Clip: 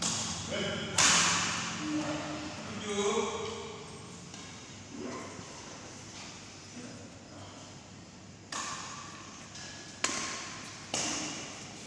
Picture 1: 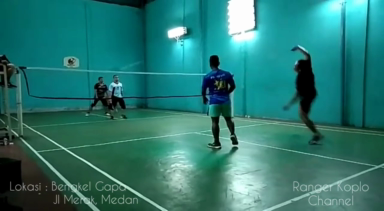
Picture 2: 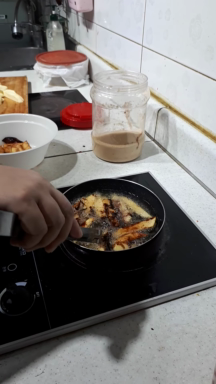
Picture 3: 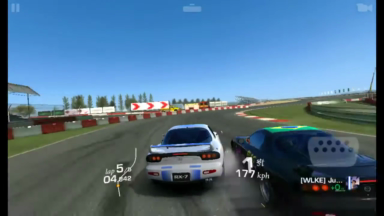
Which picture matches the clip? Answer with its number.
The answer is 1